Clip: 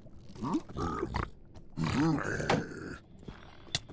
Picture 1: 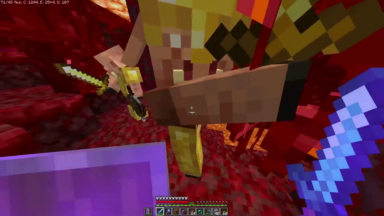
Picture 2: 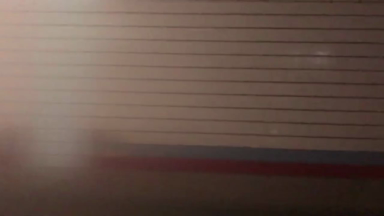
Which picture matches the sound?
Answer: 1